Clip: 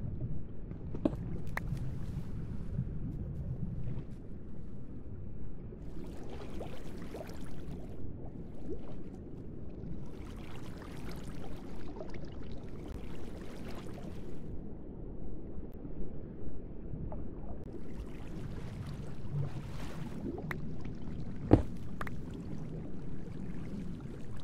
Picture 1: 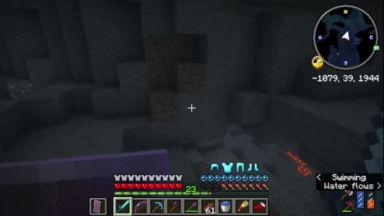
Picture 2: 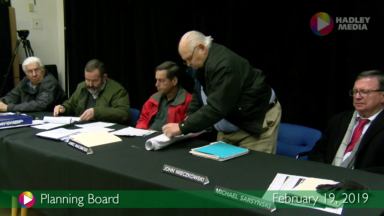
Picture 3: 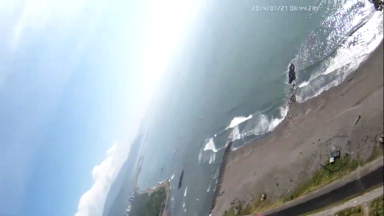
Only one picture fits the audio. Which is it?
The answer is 1